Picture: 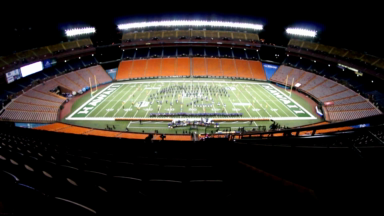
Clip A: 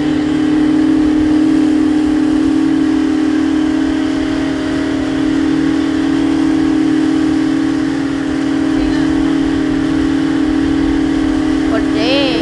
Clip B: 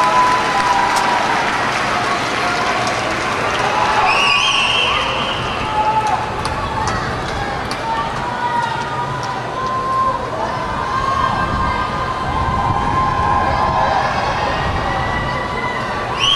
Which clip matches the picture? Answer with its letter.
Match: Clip B